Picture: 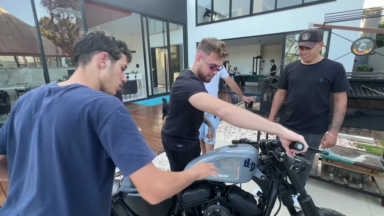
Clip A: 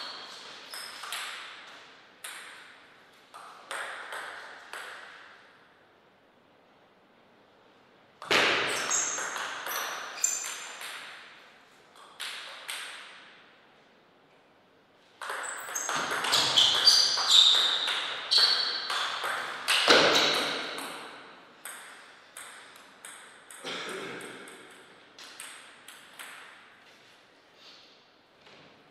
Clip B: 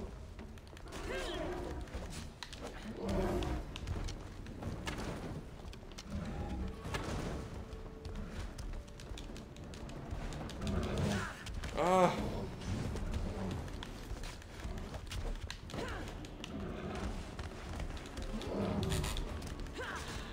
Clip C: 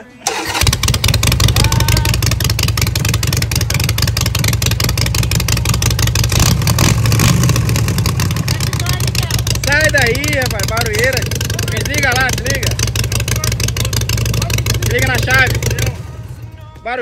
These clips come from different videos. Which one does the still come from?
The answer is C